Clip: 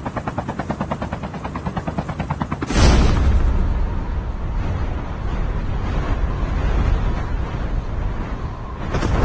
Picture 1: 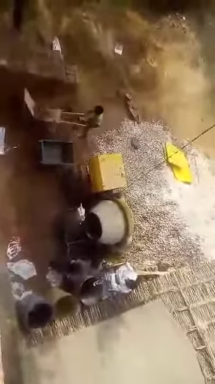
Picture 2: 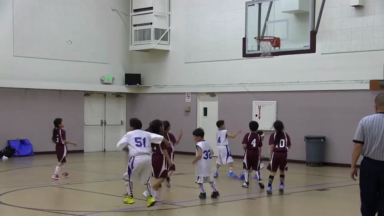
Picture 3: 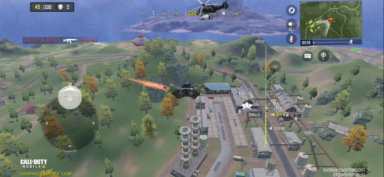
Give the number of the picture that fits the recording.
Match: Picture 3